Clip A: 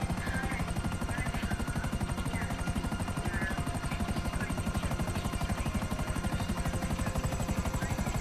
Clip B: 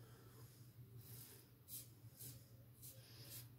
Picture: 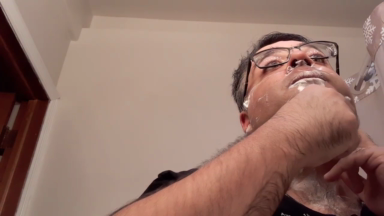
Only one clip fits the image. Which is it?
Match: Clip B